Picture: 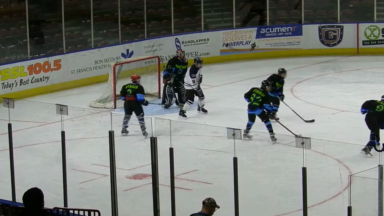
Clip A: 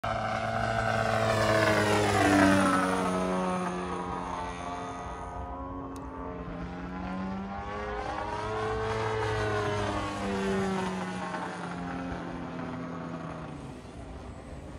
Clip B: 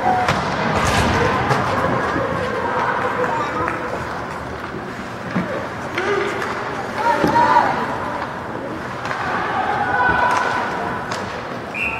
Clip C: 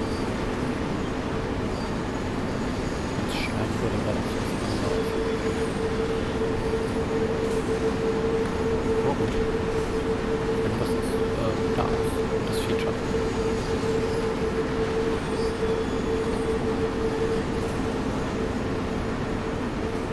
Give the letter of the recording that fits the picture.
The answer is B